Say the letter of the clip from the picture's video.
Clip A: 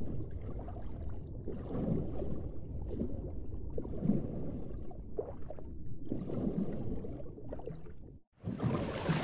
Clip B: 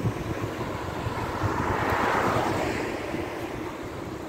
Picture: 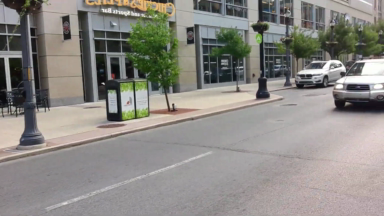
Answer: B